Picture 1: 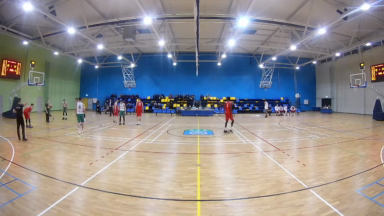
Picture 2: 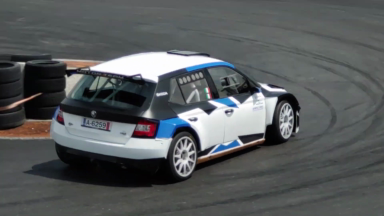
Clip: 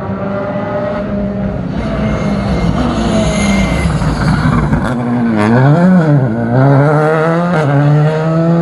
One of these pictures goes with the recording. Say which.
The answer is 2